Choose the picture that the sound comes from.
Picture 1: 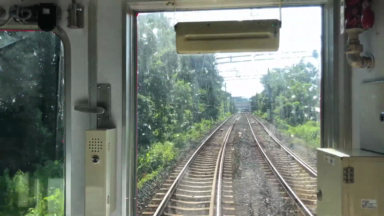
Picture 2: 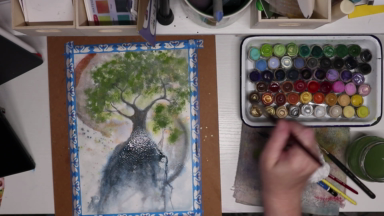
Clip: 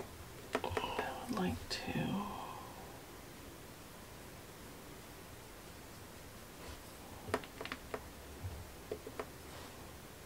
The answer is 2